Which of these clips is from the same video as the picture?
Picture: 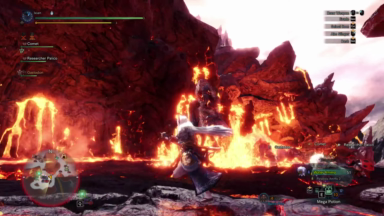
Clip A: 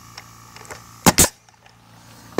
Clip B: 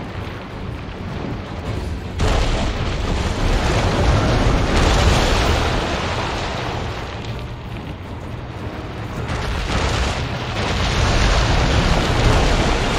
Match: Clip B